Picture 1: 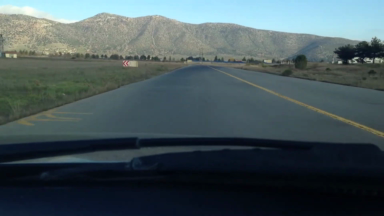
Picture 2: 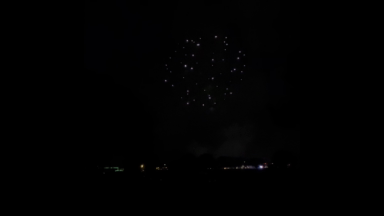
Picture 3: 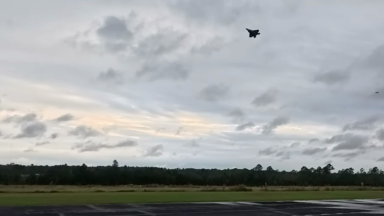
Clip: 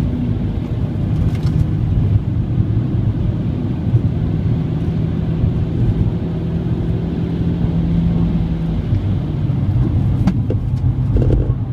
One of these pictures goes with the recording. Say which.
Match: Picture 1